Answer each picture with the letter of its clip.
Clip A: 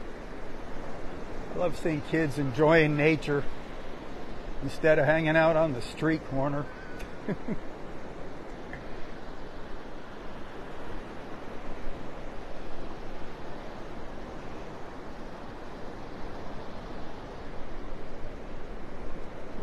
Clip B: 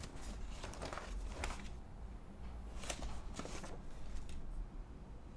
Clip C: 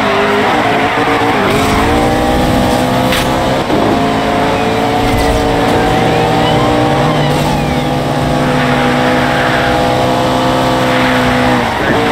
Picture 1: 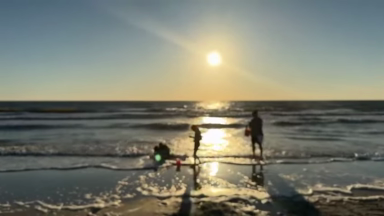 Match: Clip A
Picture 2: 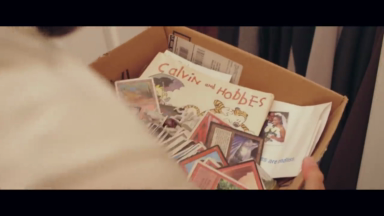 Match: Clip B